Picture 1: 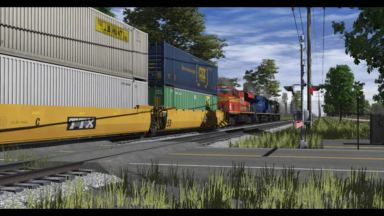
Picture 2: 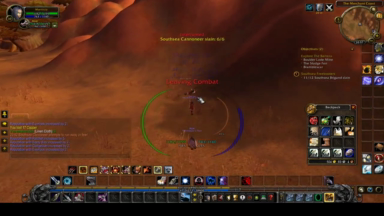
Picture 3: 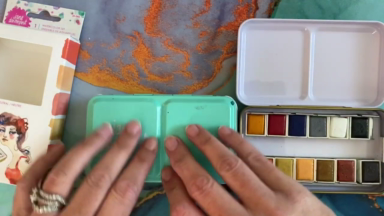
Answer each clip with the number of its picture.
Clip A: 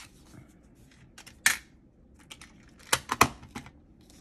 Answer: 3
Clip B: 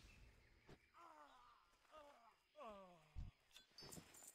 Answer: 2